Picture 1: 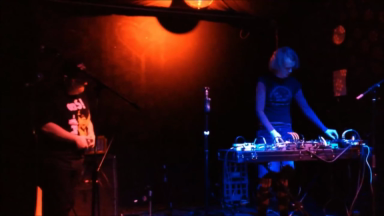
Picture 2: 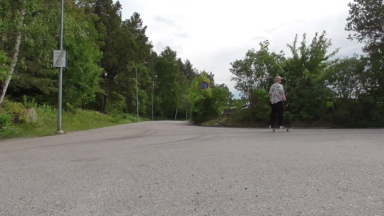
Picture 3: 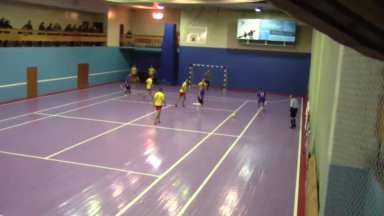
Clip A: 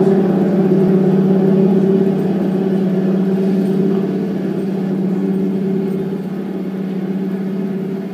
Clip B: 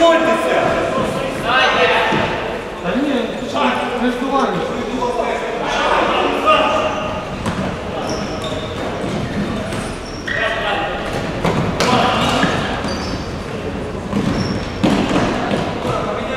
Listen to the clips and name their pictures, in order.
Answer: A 1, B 3